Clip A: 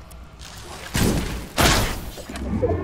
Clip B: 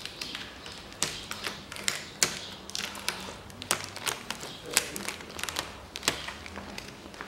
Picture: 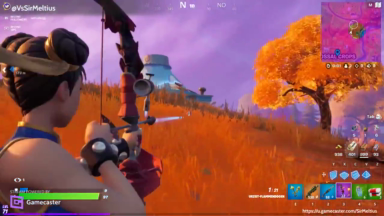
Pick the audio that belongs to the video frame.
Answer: A